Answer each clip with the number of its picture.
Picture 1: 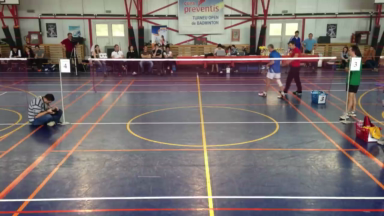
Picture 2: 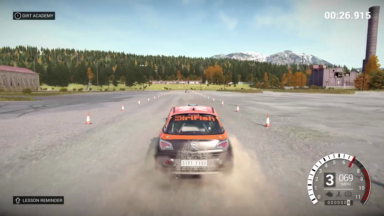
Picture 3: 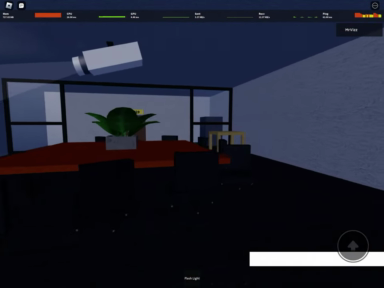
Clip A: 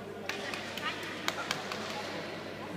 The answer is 1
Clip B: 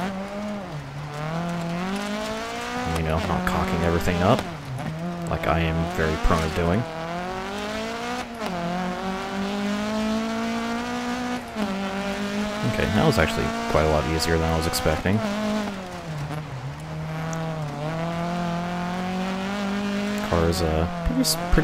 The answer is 2